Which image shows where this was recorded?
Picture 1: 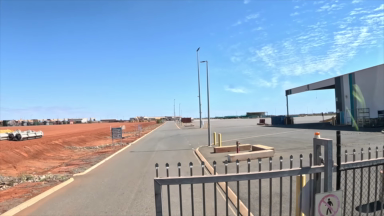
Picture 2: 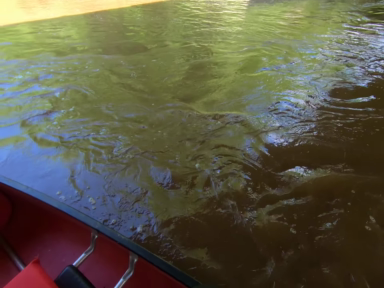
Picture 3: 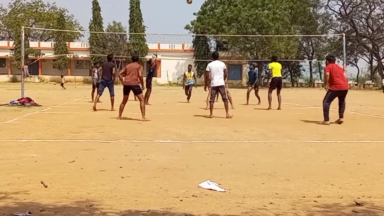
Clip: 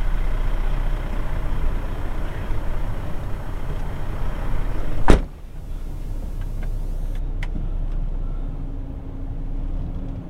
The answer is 1